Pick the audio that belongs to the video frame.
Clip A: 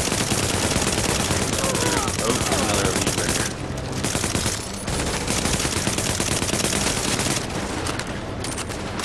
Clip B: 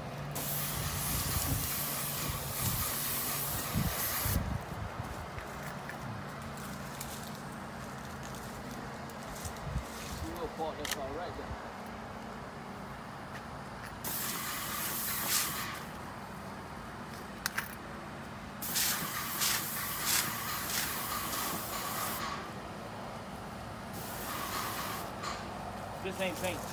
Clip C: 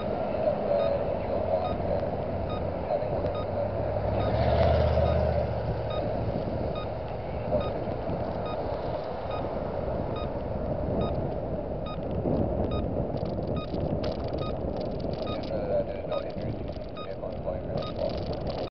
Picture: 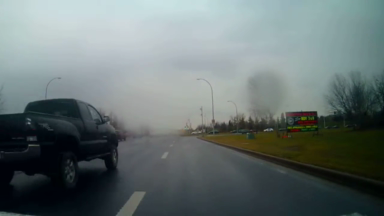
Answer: C